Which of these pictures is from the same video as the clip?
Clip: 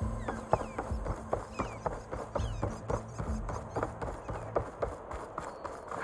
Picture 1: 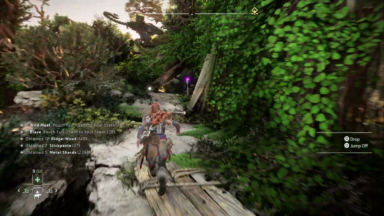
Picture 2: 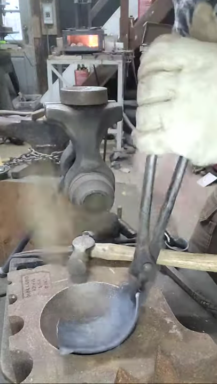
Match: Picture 1